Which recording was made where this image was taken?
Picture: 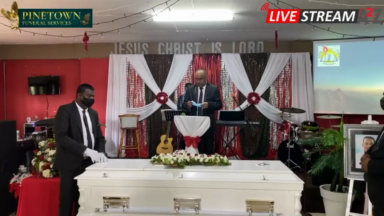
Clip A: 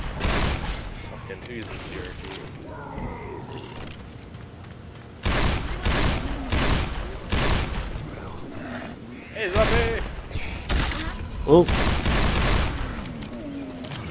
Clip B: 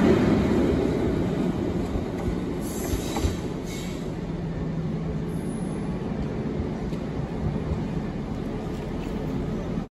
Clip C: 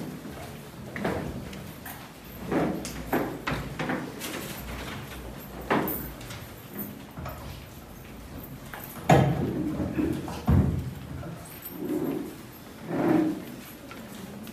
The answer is C